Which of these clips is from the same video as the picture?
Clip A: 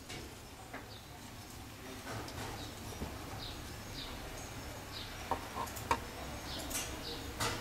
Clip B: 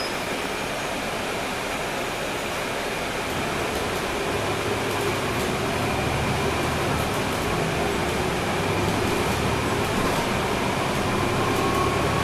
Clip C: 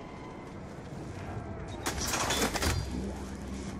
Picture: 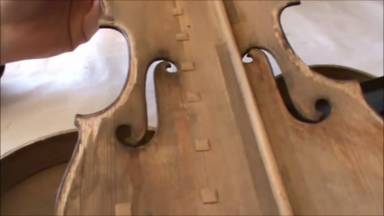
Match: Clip A